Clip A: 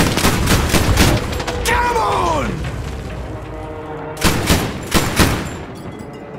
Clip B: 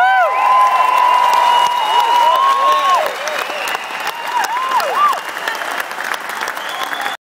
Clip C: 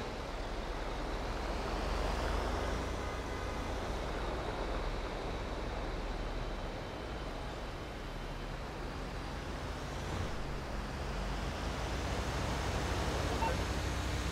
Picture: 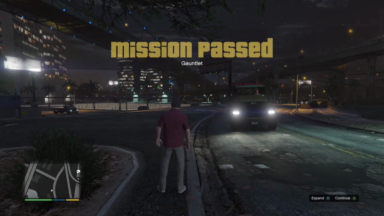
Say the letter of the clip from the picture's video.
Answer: C